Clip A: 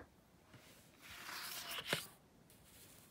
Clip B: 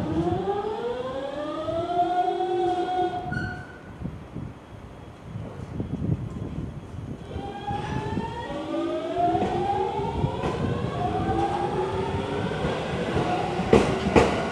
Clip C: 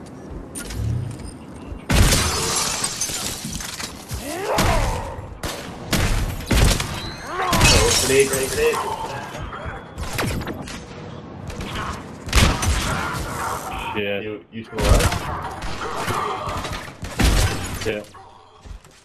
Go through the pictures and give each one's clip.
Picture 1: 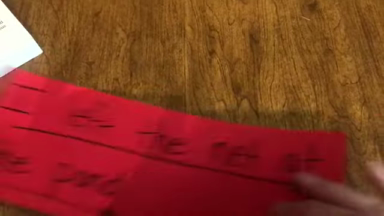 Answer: A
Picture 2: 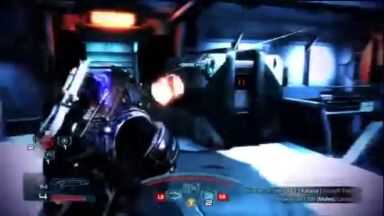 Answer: C